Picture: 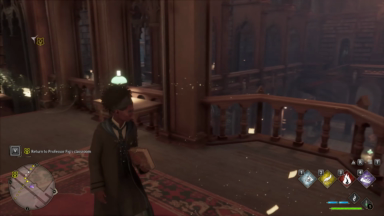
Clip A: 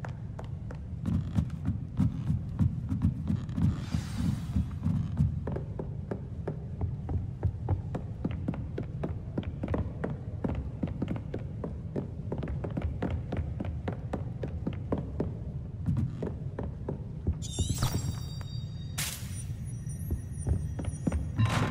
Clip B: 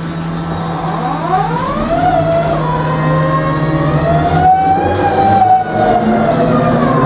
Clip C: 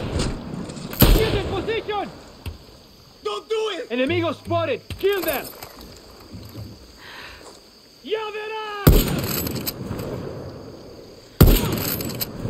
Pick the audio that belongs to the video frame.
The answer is A